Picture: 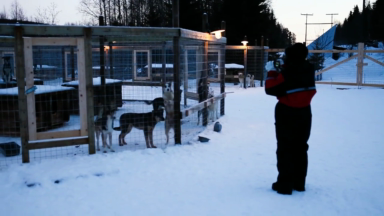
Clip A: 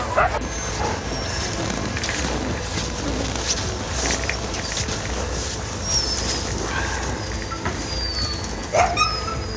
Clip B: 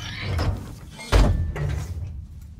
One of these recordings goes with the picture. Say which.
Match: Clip A